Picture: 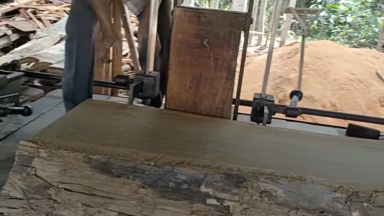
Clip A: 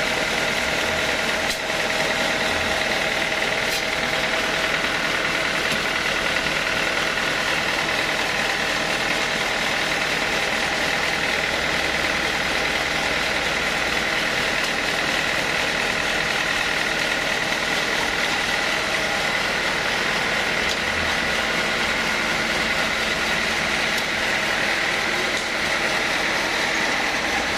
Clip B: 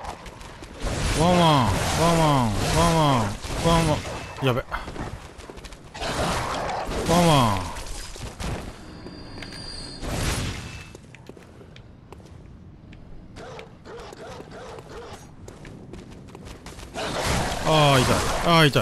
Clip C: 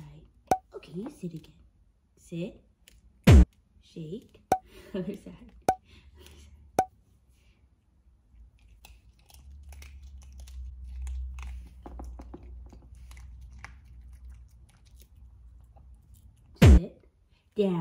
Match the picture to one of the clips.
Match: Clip A